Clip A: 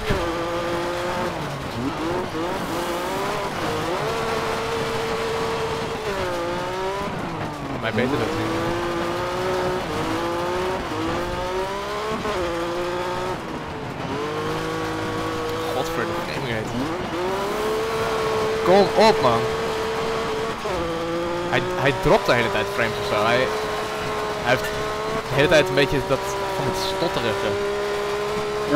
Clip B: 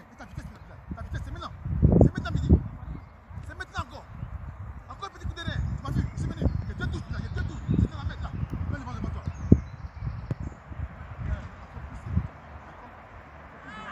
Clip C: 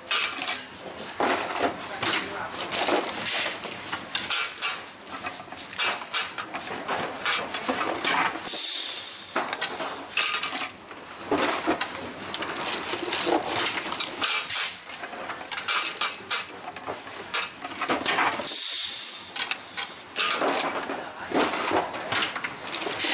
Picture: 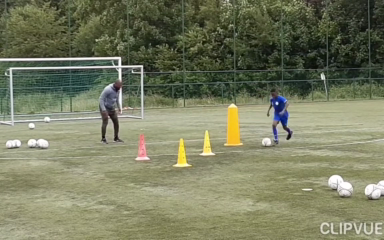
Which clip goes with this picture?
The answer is B